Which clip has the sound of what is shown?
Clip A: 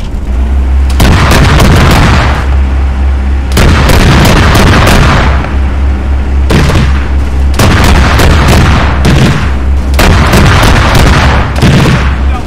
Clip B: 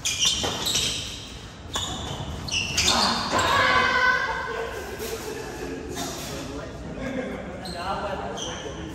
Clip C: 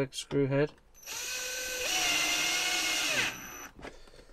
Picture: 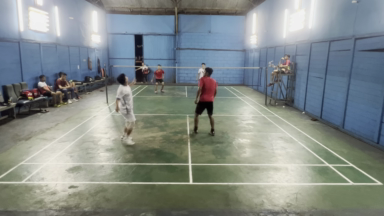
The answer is B